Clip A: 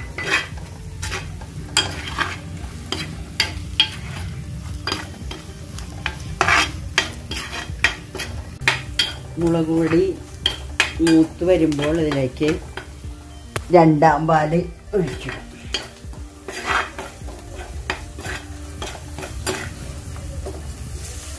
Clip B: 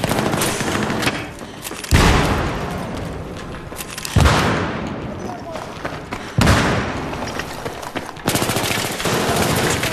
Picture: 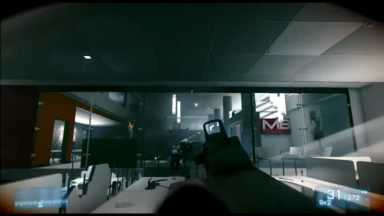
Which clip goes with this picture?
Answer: B